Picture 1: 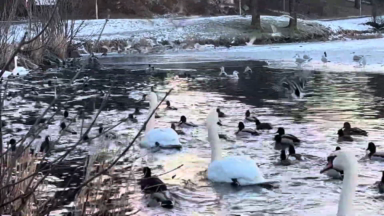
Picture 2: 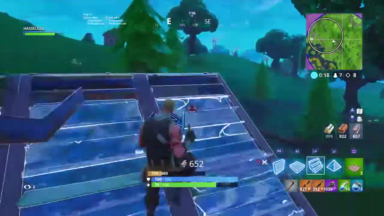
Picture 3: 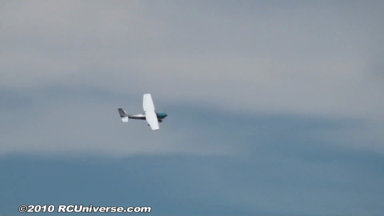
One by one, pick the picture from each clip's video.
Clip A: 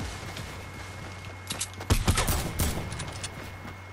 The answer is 2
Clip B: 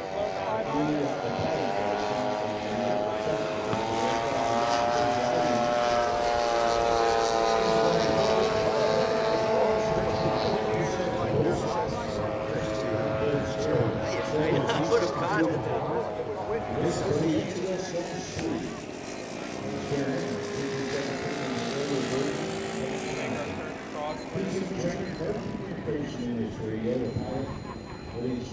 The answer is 3